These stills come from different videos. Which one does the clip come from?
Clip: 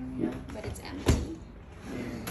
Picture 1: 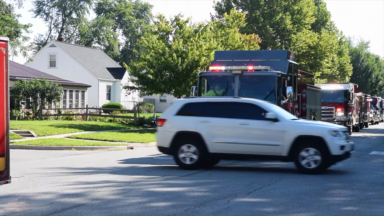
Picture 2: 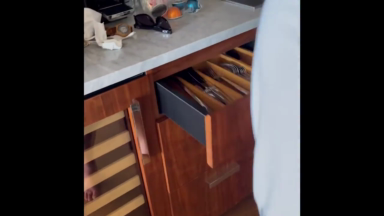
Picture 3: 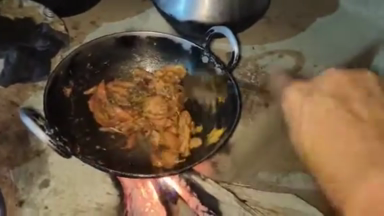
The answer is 2